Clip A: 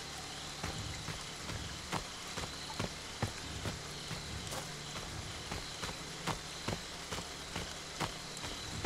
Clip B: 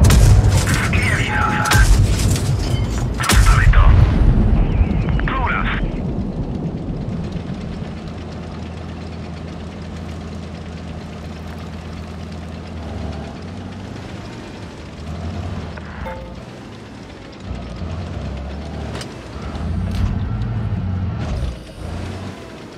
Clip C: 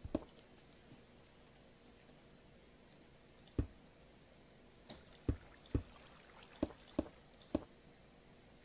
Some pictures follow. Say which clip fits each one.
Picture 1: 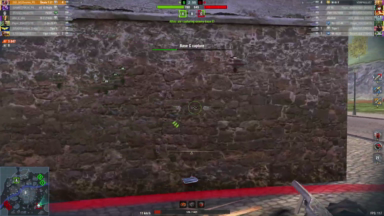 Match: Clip B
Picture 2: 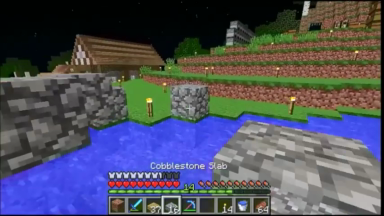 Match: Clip C